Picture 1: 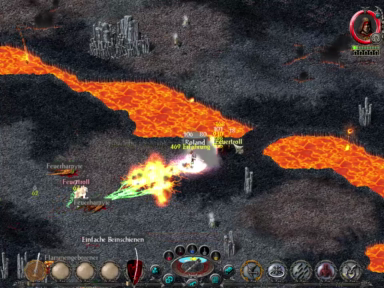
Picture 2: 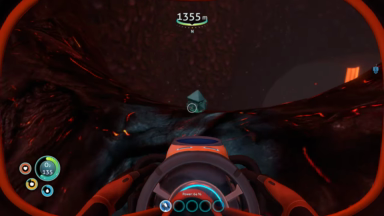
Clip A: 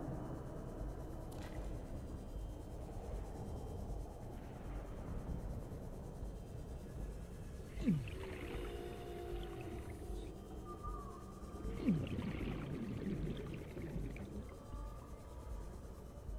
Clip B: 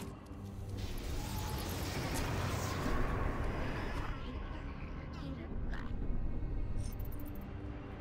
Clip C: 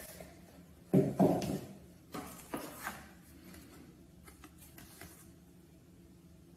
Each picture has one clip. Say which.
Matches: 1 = B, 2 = A